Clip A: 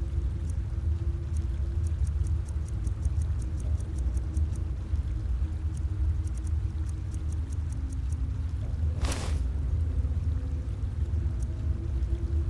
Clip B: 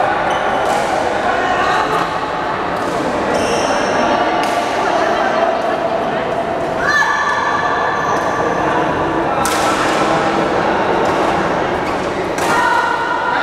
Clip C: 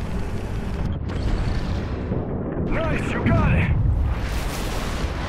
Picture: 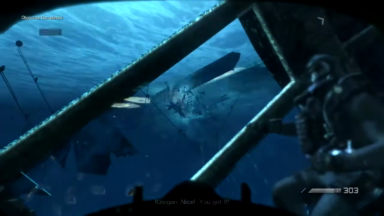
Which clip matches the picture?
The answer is C